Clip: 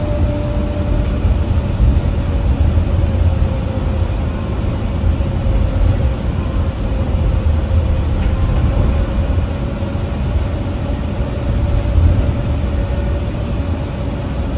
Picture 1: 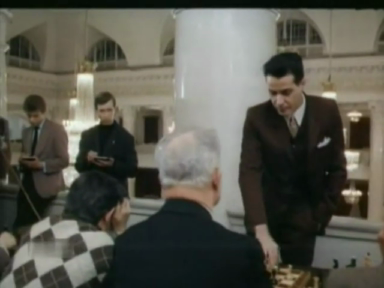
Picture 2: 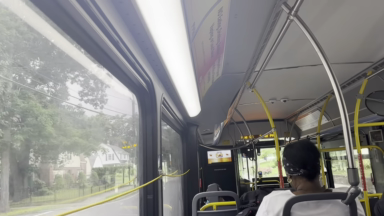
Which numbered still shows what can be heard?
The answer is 2